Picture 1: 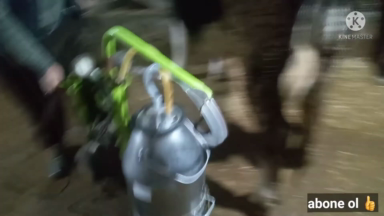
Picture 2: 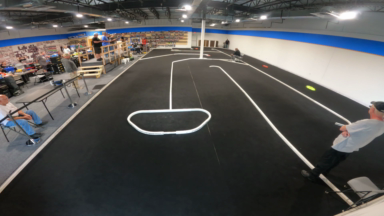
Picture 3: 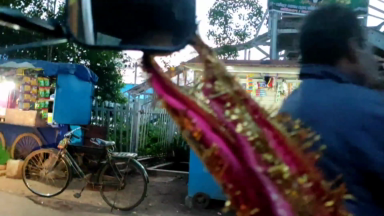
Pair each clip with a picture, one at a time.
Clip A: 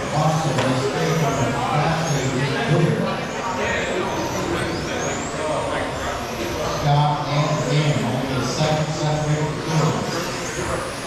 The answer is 2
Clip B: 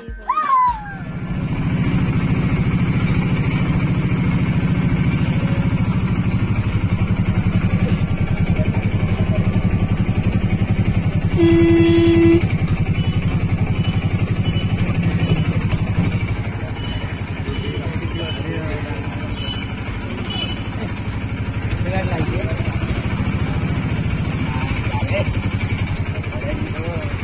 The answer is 3